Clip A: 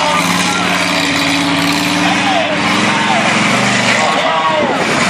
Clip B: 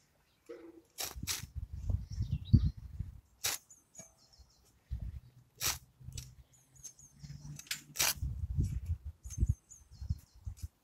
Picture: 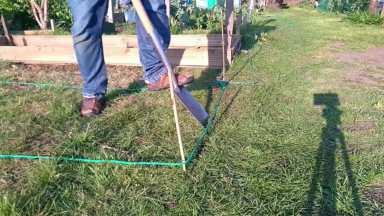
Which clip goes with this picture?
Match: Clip B